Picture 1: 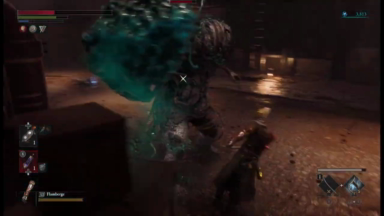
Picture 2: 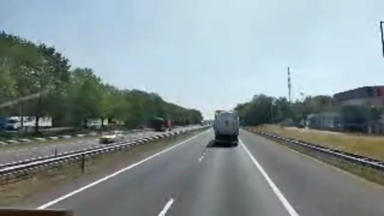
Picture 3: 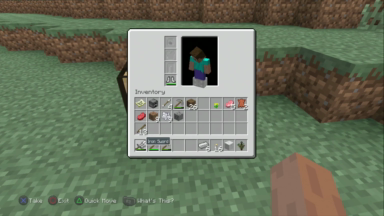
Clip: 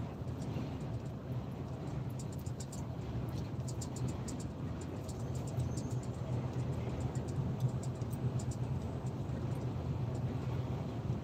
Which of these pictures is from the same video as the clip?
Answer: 2